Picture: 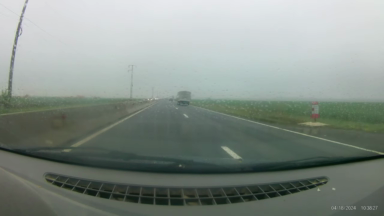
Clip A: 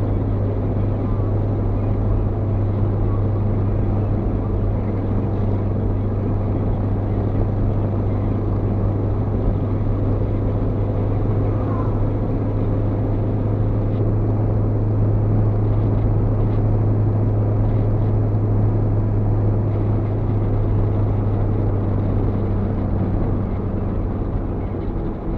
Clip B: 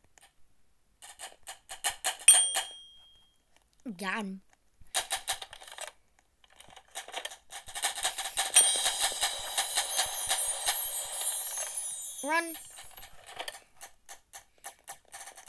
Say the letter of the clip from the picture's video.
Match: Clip A